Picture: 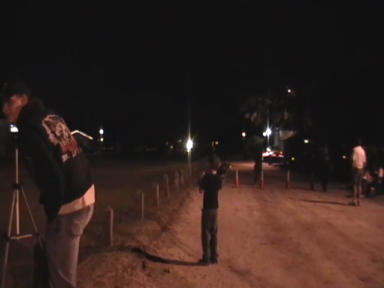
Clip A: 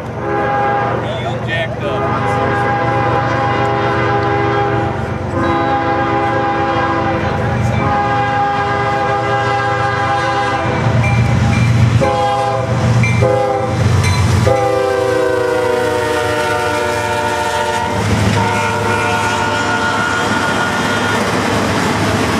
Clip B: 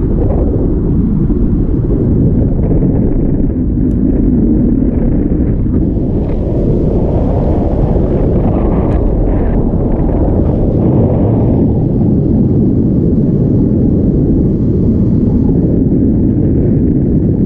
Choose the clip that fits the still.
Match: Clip A